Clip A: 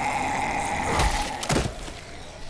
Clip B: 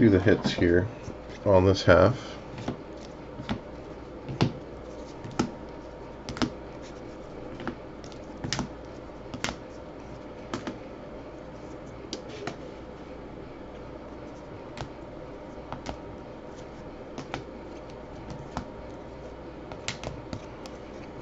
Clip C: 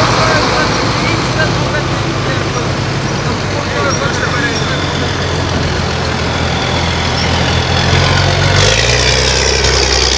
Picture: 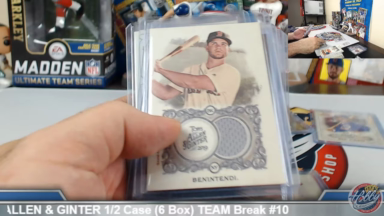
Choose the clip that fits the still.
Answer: B